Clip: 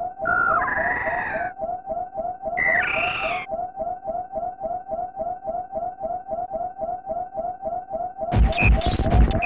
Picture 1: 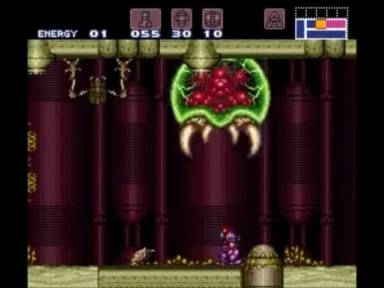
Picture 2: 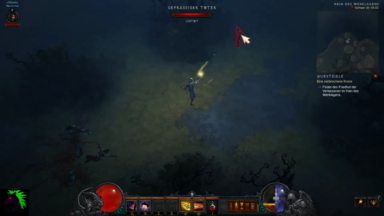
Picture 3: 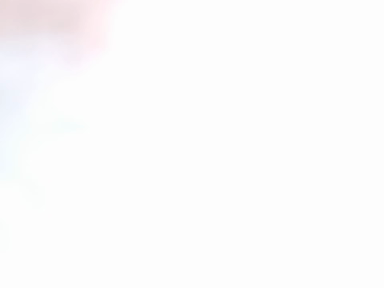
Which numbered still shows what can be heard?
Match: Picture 1